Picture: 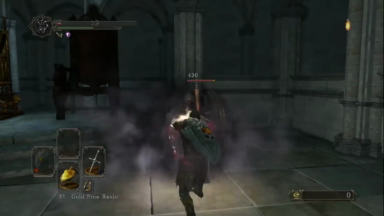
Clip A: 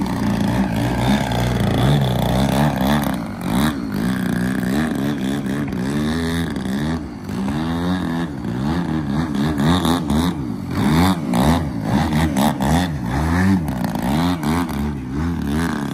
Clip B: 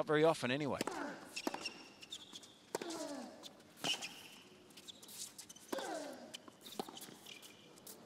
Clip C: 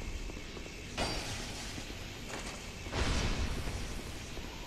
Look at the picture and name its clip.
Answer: C